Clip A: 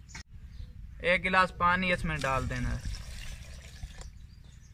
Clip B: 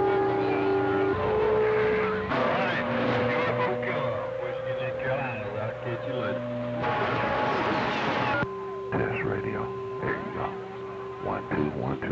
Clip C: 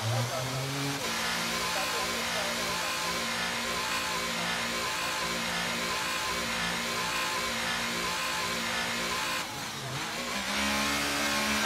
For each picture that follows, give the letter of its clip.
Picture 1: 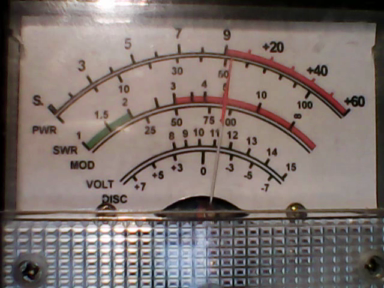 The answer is B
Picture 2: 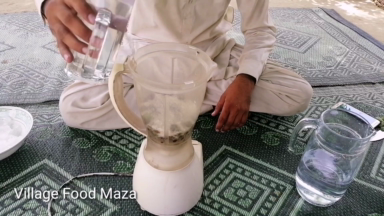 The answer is A